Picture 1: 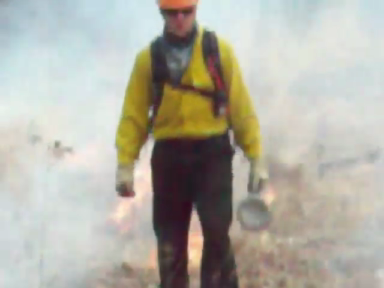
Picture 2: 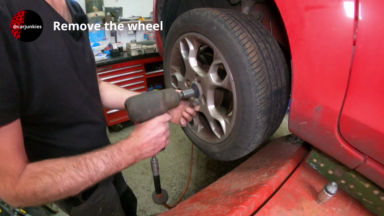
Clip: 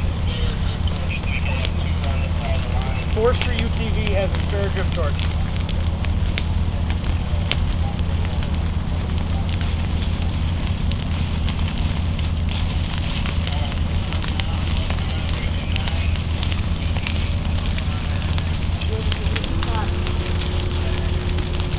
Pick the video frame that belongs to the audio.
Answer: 1